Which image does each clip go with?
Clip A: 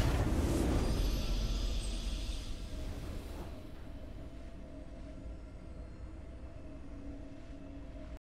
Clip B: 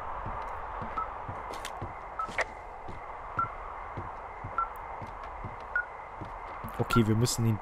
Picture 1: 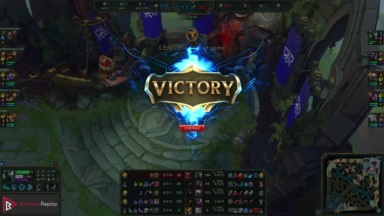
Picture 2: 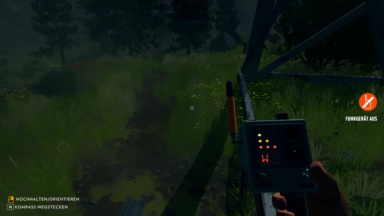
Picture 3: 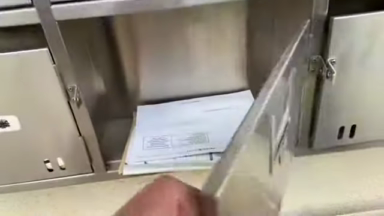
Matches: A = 1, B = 2